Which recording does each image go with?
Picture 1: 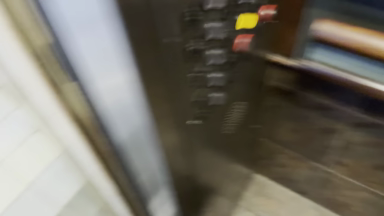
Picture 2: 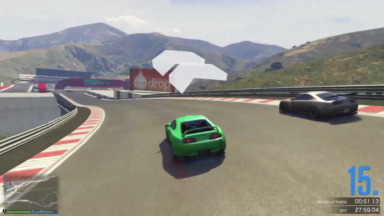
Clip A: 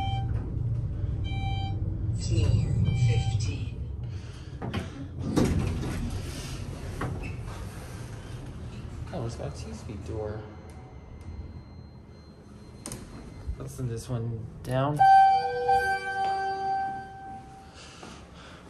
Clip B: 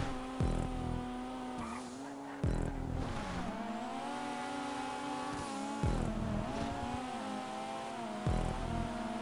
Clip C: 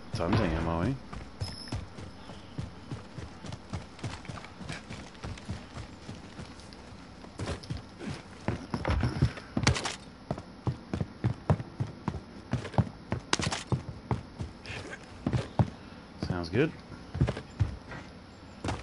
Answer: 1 A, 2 B